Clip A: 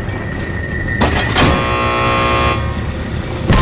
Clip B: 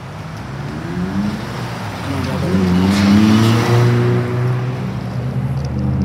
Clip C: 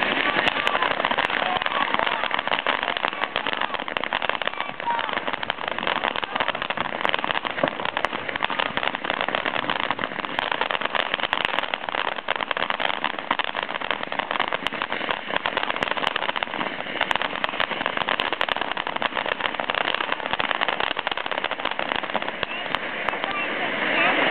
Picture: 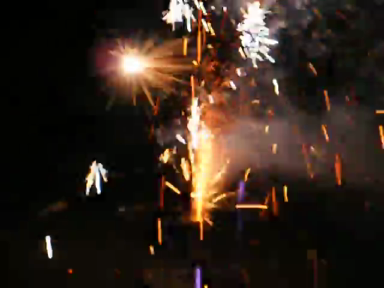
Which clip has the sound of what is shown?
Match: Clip C